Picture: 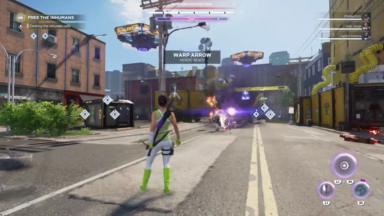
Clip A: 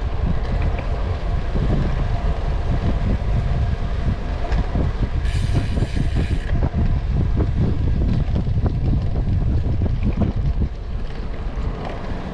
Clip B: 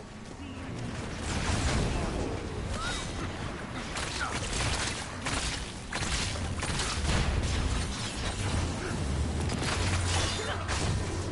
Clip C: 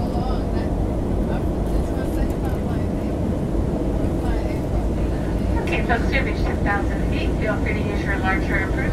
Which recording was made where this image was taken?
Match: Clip B